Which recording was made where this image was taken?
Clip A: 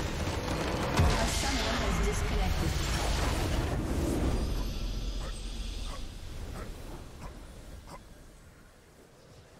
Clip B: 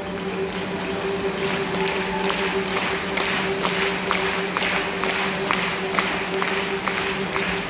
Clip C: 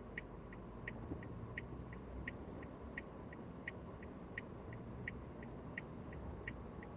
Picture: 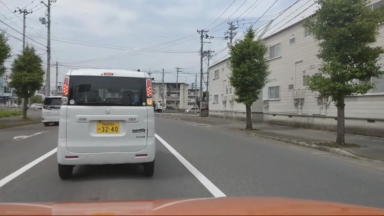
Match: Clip C